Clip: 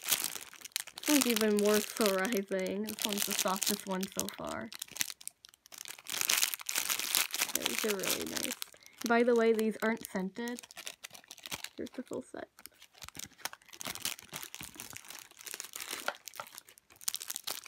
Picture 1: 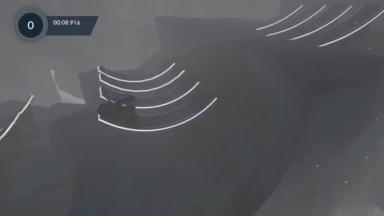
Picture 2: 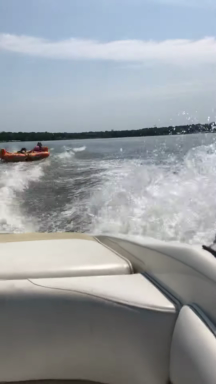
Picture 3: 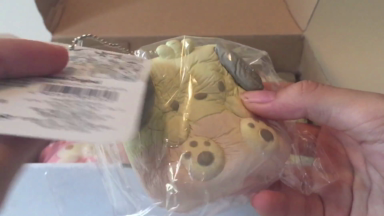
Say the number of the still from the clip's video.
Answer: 3